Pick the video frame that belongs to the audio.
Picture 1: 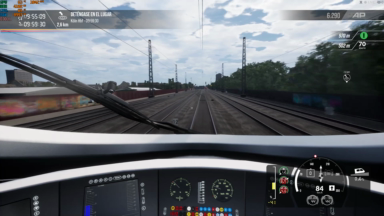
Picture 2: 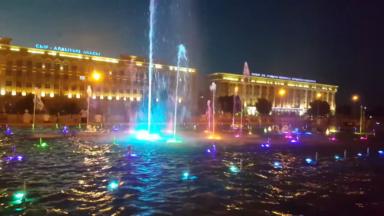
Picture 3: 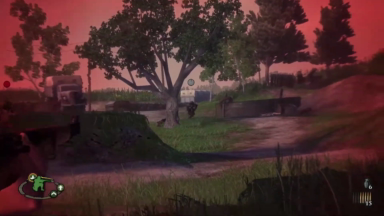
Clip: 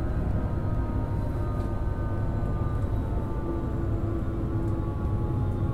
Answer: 1